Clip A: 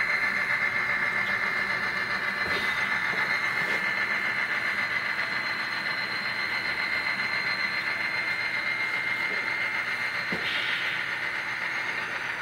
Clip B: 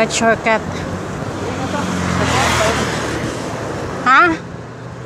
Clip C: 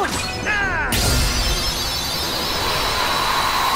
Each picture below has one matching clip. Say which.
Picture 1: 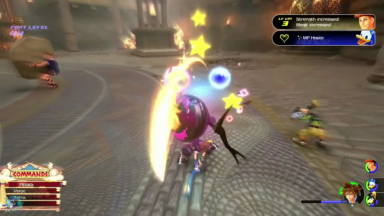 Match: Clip C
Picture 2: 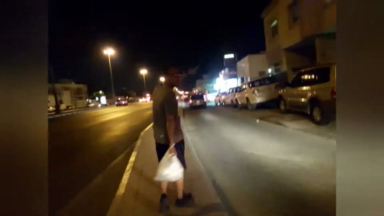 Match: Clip B